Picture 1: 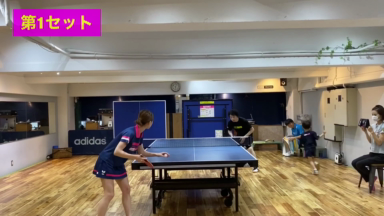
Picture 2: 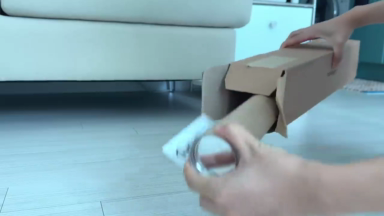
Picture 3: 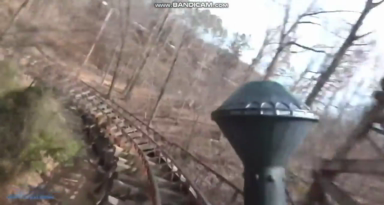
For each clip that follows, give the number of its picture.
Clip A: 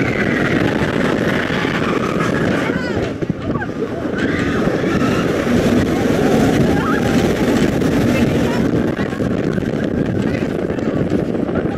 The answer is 3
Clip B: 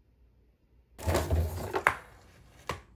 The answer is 2